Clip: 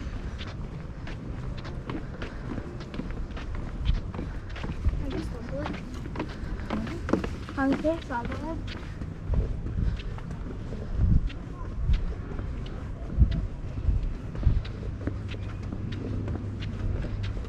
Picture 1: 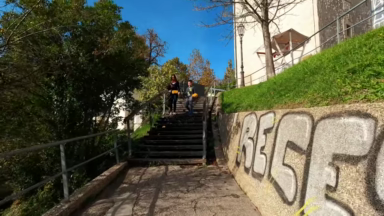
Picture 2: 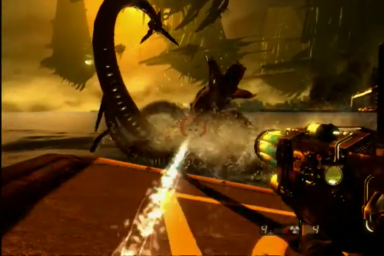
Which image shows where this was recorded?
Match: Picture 1